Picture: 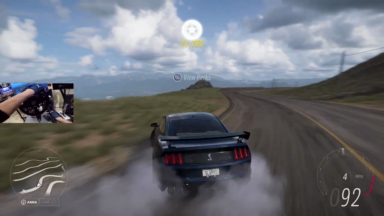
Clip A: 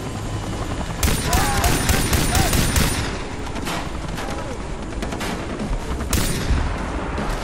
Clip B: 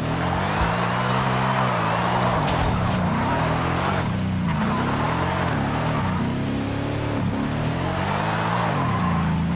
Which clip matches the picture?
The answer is B